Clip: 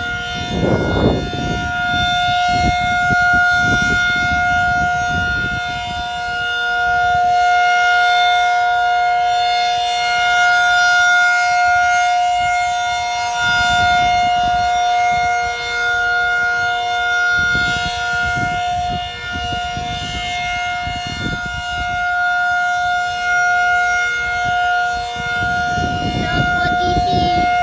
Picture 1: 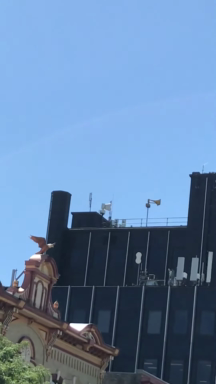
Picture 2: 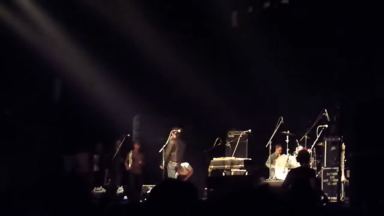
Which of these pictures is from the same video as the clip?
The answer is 1